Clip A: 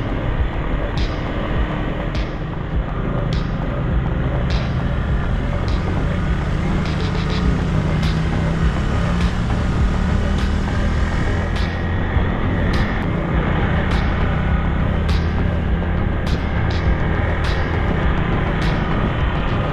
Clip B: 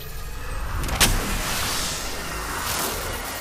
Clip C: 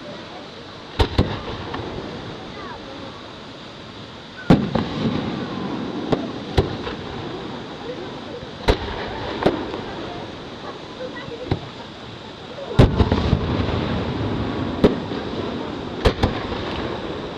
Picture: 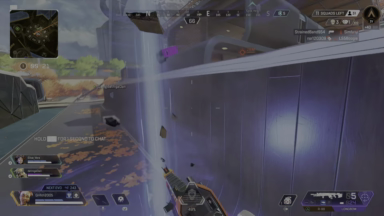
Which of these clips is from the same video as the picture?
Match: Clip B